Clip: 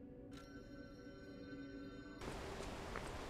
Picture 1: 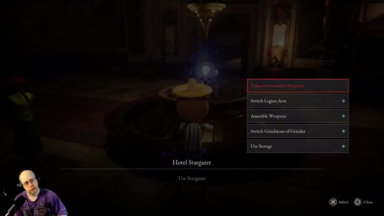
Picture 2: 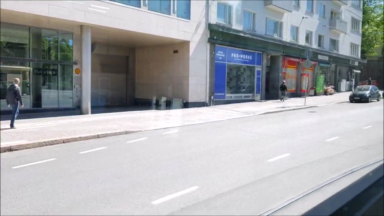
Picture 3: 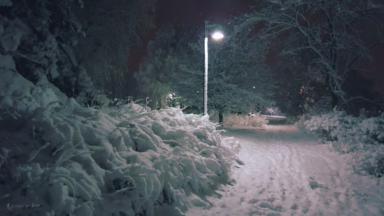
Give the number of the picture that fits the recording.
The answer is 1